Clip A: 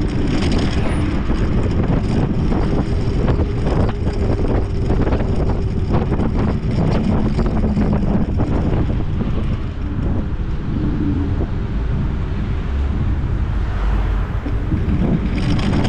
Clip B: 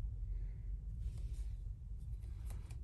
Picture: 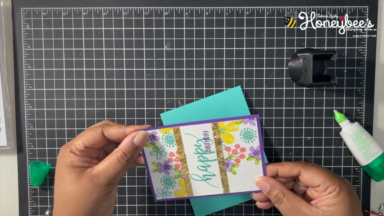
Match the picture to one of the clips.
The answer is B